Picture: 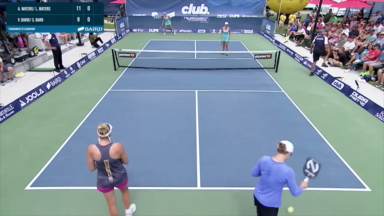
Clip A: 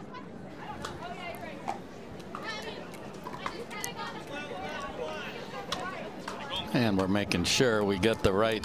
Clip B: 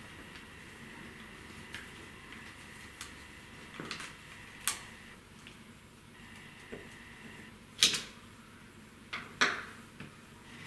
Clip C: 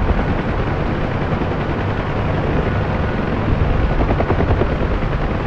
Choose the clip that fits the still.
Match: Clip A